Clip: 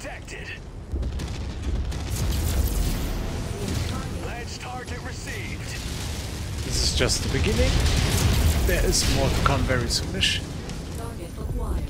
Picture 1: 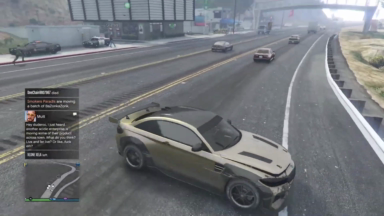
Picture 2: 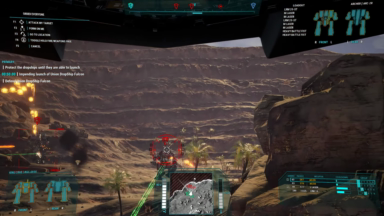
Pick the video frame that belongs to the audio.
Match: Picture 2